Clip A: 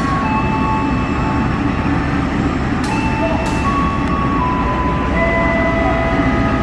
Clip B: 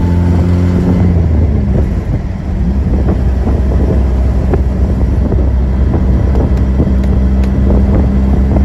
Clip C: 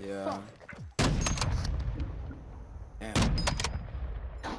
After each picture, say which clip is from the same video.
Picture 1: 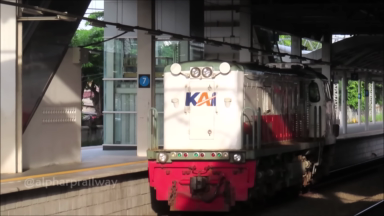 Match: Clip A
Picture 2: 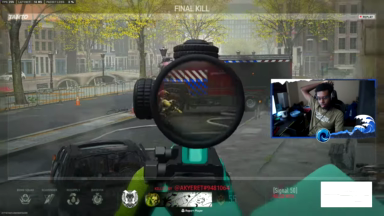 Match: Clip C